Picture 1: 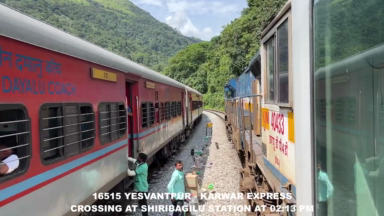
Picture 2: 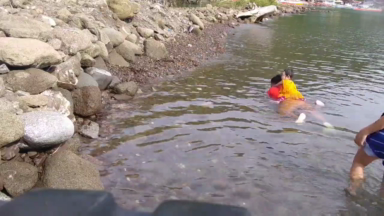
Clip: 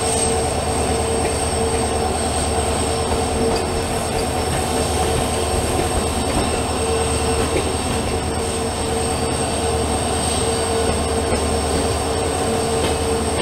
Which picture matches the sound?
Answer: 1